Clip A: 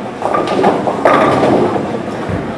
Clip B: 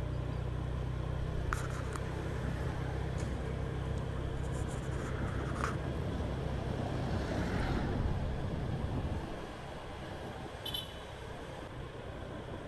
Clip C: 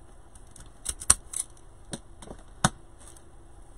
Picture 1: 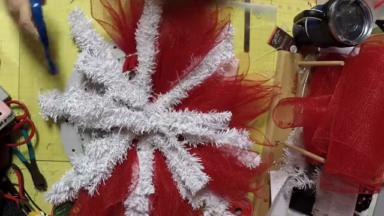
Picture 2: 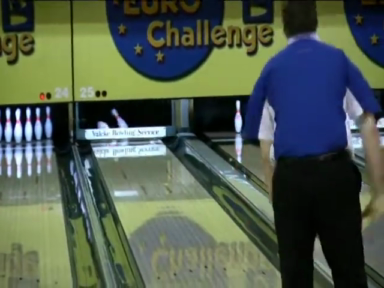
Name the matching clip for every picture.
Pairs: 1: C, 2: A